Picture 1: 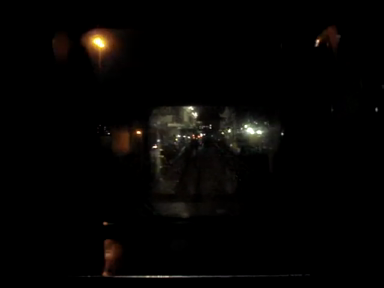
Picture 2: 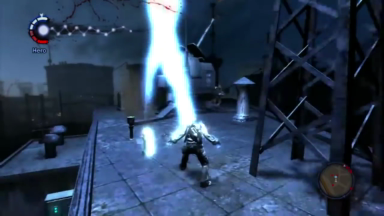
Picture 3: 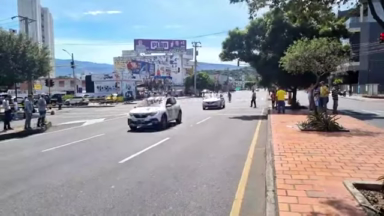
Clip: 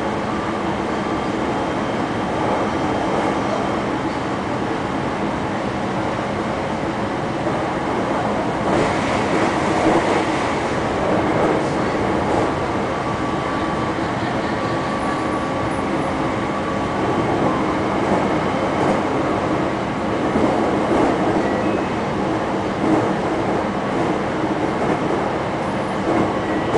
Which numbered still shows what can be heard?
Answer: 1